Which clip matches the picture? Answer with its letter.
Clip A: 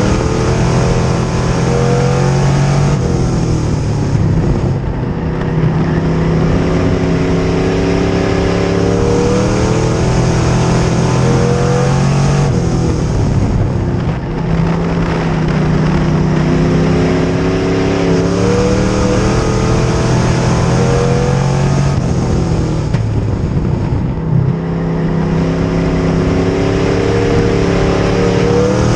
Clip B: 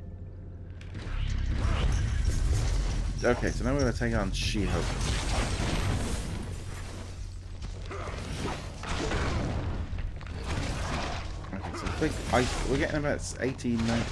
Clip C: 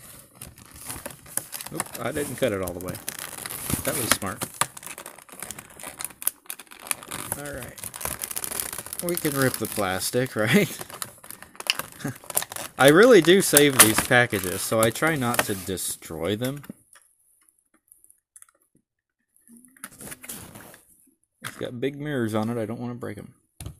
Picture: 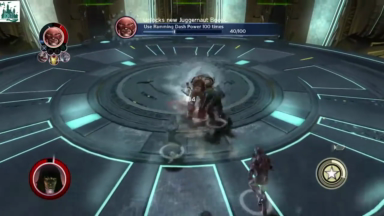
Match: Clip B